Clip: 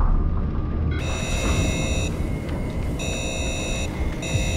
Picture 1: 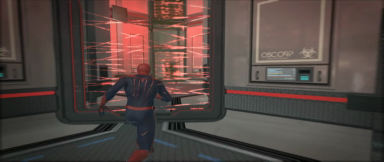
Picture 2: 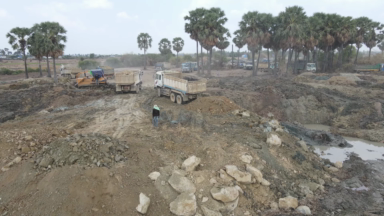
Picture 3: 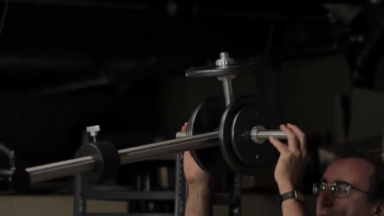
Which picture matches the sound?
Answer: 1